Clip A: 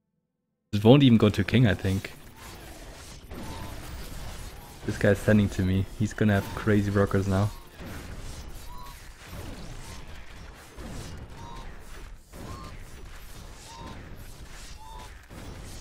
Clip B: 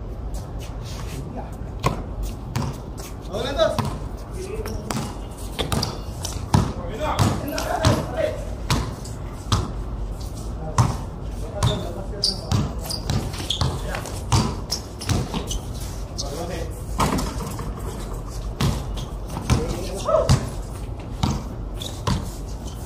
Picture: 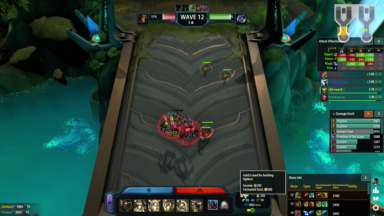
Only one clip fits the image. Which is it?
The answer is A